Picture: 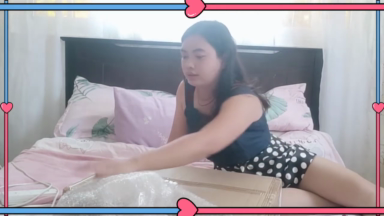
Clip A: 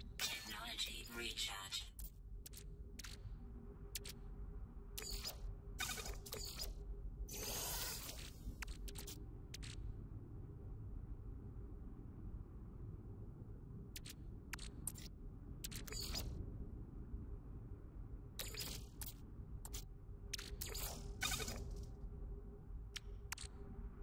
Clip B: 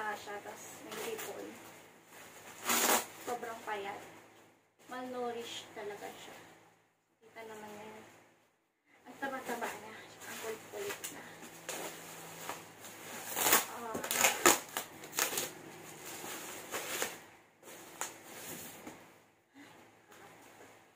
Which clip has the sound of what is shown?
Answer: B